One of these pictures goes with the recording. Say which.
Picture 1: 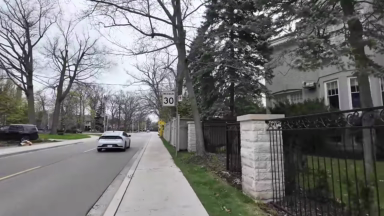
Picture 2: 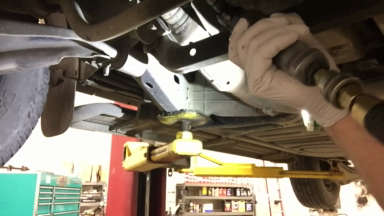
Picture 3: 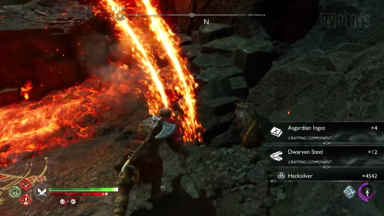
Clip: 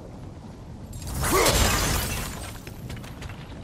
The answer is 3